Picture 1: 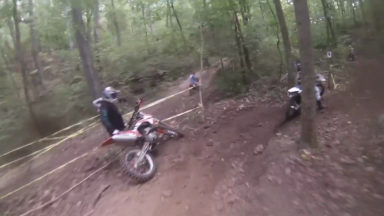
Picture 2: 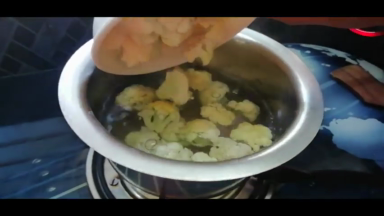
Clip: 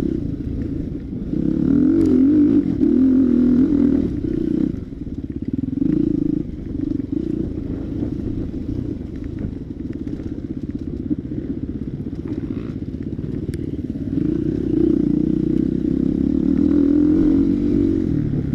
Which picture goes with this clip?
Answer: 1